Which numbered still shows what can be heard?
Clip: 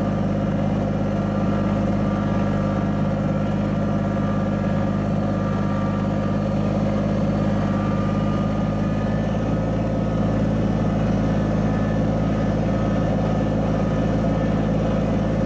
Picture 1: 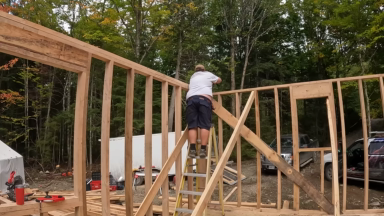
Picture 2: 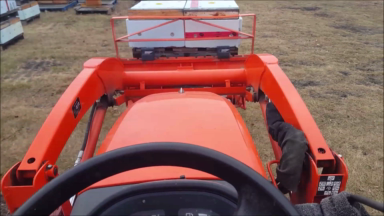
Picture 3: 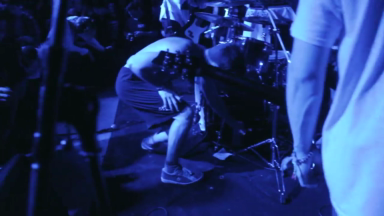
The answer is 2